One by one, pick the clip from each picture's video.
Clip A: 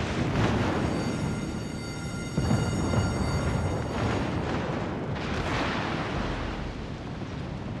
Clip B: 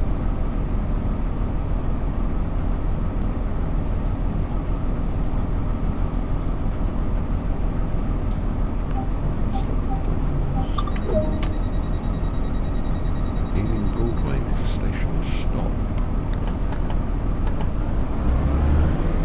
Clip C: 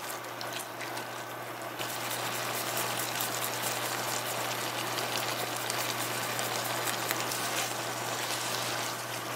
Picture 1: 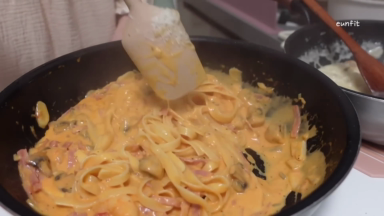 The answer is C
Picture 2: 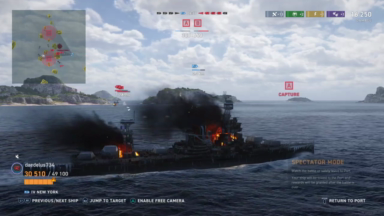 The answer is A